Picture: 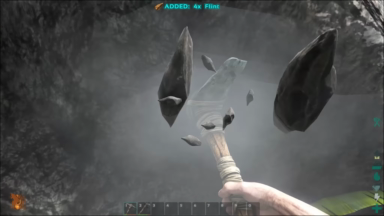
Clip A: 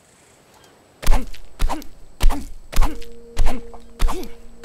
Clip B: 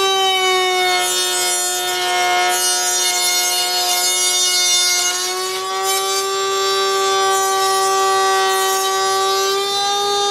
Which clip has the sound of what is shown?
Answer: A